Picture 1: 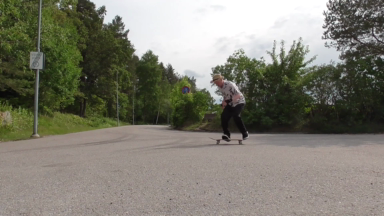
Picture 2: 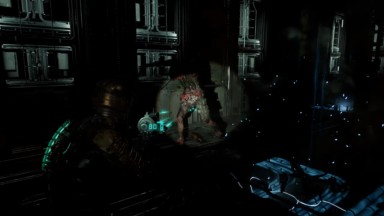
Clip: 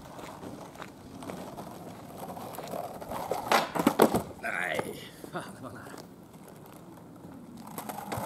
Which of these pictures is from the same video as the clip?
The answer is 1